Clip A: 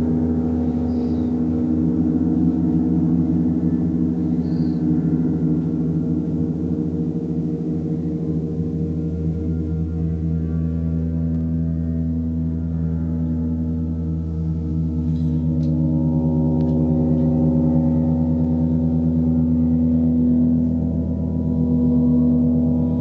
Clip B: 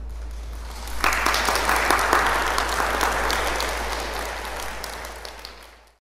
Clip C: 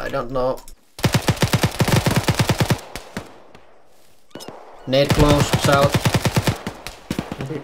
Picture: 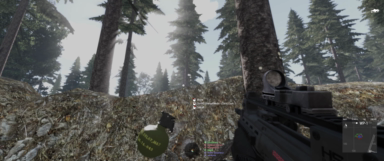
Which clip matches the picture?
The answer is C